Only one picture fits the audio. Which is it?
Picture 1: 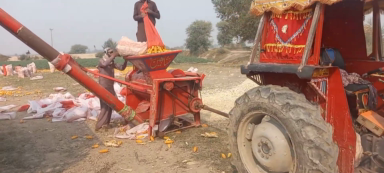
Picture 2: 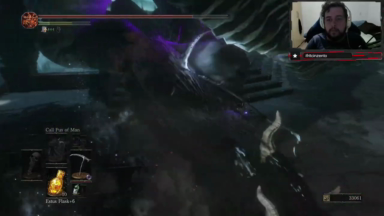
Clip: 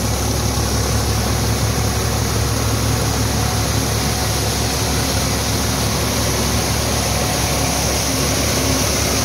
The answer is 1